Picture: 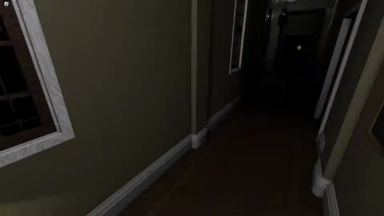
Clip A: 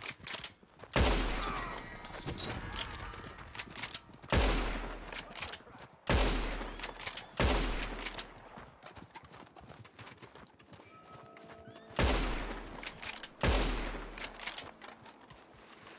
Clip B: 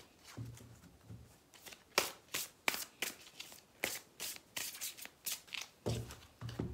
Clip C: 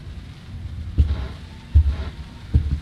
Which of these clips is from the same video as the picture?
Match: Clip C